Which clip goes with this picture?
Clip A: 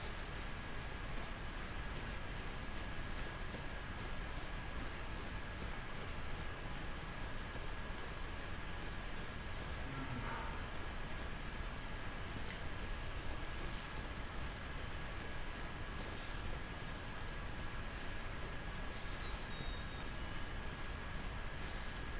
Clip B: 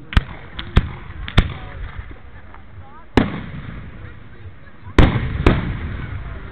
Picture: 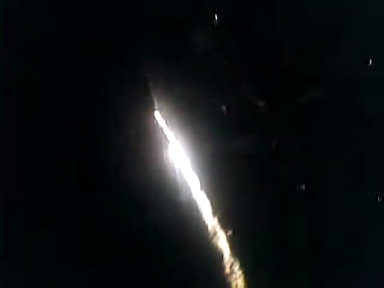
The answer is B